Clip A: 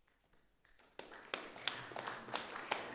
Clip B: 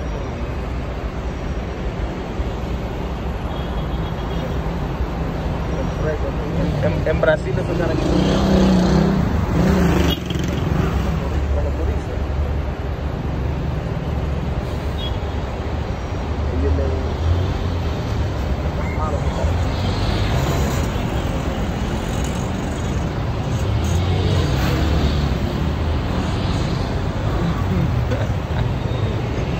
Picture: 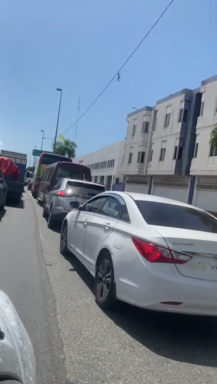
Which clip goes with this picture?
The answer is B